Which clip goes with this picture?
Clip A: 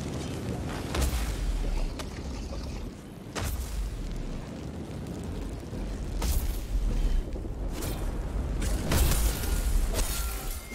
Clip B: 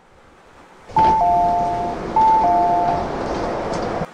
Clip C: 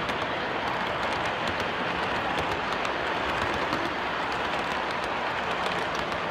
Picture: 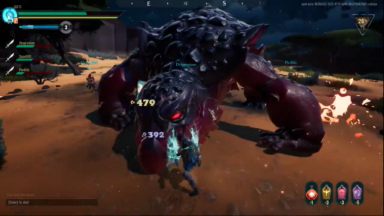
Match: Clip A